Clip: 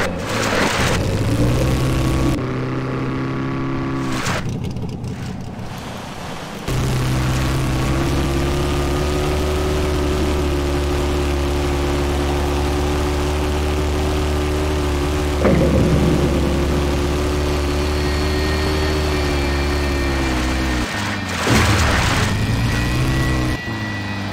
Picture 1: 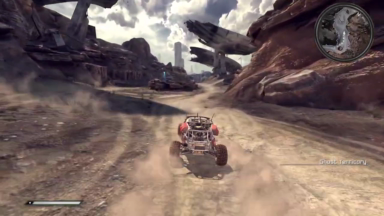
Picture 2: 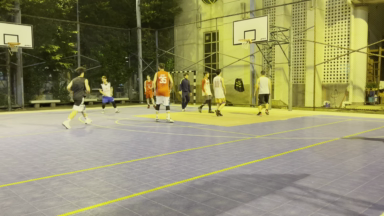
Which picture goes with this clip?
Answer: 1